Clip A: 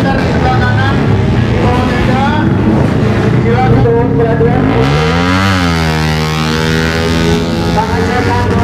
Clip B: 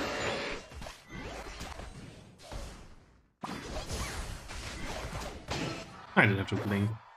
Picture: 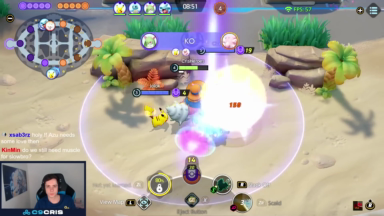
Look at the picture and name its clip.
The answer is B